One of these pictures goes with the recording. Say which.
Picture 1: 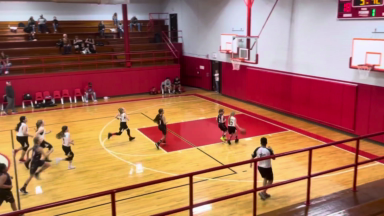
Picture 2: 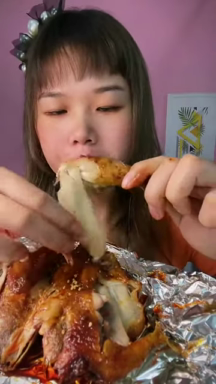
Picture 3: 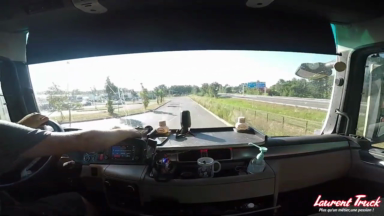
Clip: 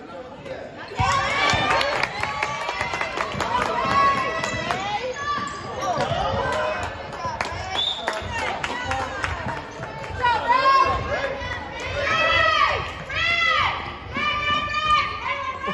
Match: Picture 1